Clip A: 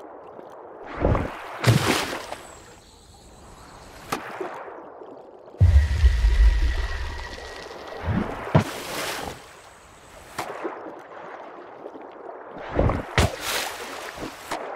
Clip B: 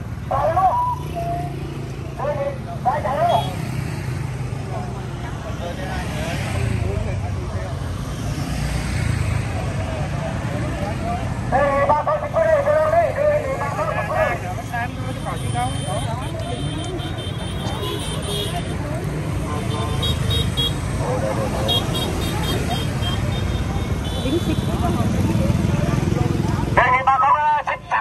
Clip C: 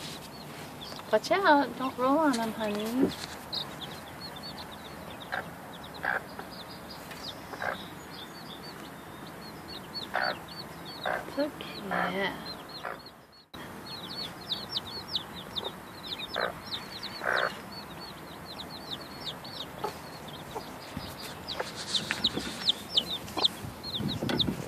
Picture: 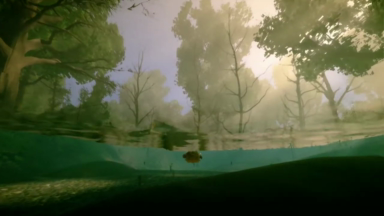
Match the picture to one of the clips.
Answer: A